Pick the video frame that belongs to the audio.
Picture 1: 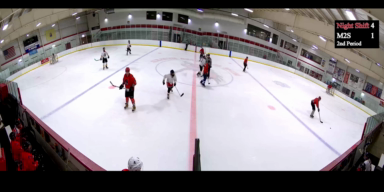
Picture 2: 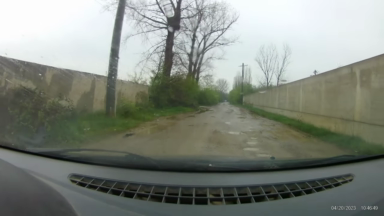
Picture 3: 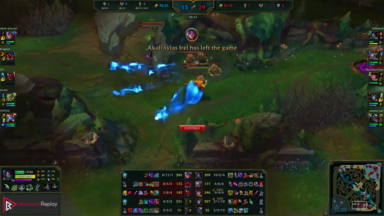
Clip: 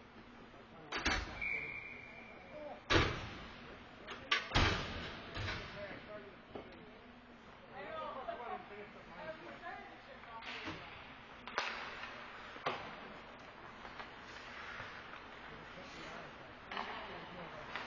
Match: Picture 1